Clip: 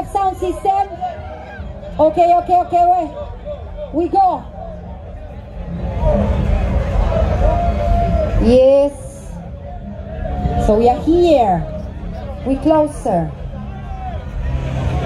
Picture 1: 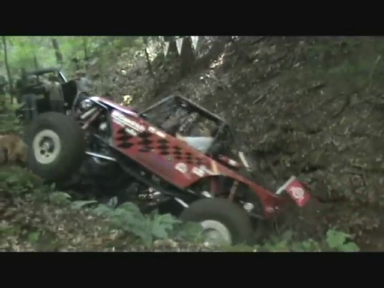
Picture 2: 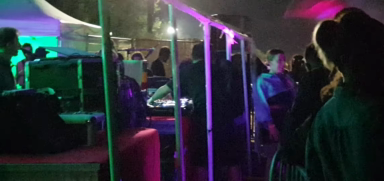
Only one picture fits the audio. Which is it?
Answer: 2